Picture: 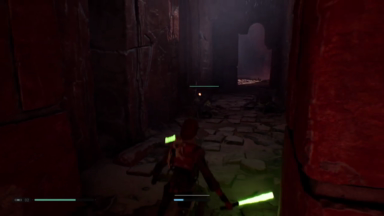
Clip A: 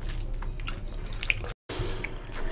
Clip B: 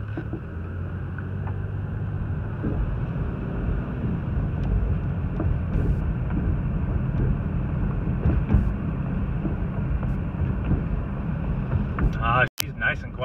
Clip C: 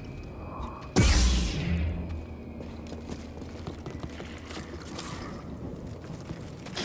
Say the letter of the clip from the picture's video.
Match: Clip C